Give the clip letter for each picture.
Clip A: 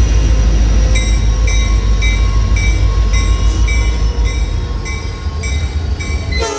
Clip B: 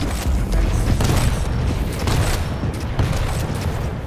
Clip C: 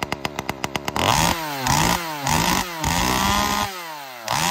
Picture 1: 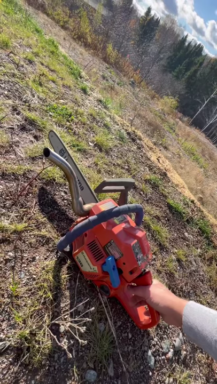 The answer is C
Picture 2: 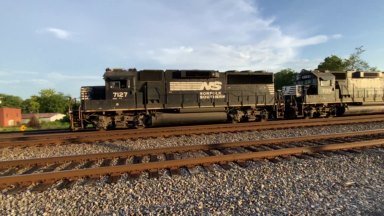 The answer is A